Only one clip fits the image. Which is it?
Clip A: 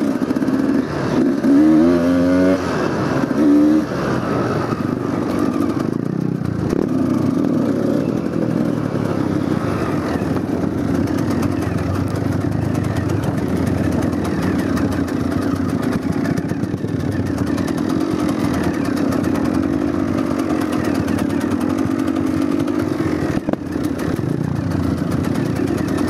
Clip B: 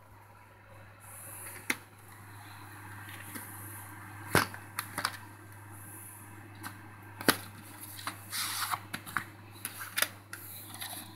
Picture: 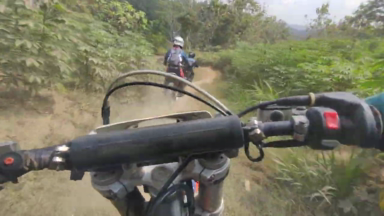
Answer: A